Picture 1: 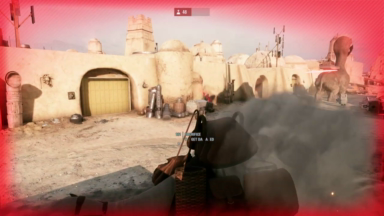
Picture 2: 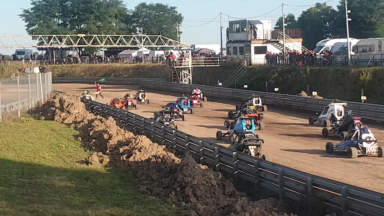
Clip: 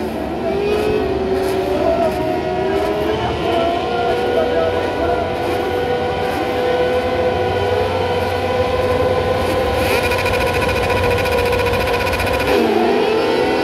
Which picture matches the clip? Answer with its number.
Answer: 2